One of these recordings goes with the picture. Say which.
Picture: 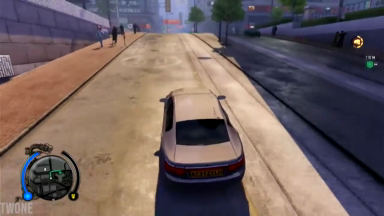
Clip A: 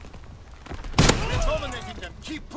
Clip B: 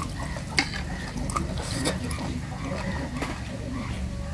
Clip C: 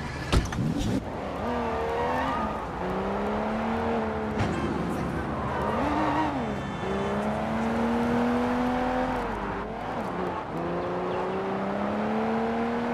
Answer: C